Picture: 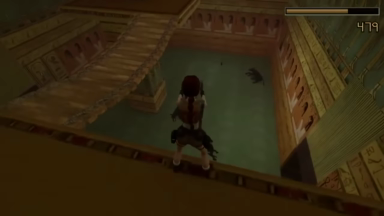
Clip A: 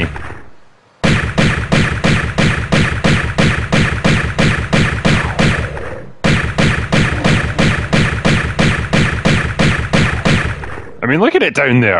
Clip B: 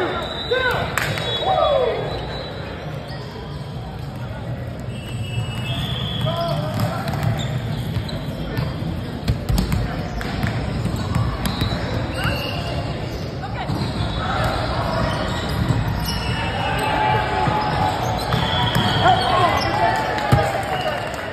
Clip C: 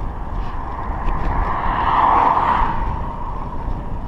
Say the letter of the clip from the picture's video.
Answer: A